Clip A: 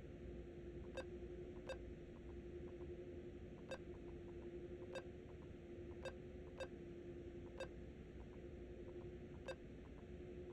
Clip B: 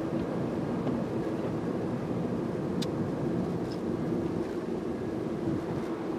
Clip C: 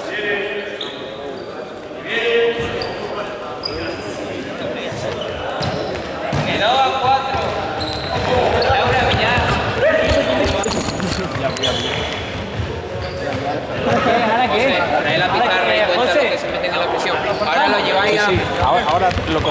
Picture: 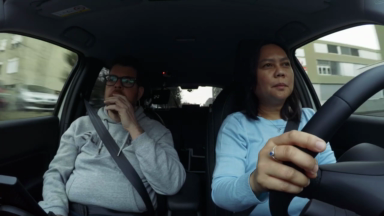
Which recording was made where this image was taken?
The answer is B